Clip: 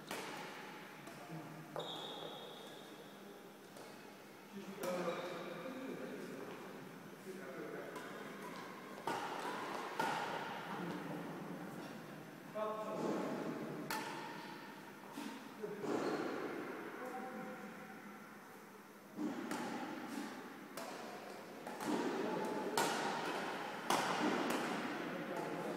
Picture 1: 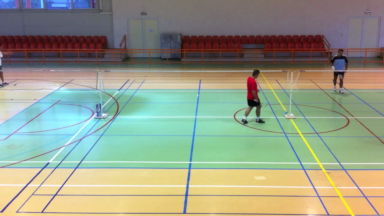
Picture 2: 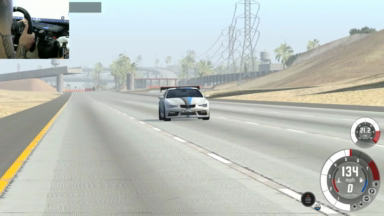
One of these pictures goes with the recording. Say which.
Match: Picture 1